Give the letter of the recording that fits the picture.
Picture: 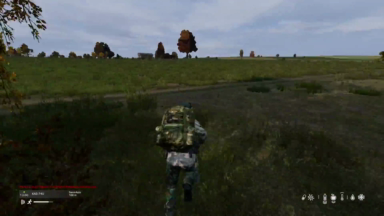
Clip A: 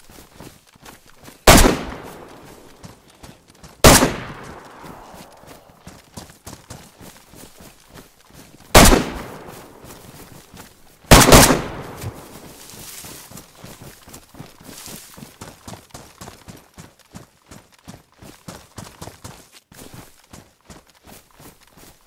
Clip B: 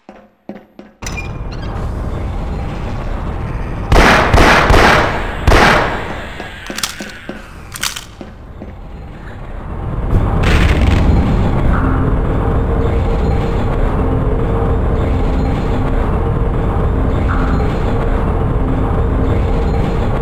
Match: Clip A